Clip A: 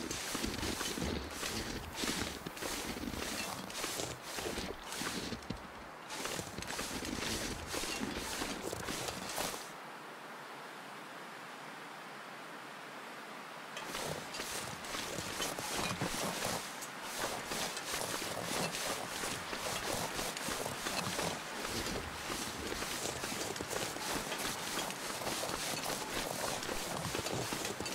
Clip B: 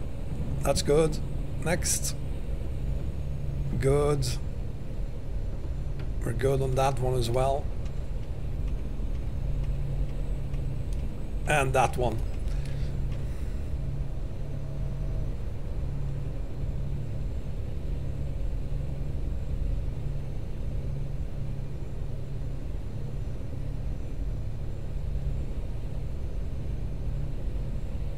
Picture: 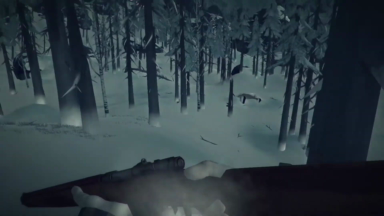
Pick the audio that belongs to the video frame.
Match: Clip A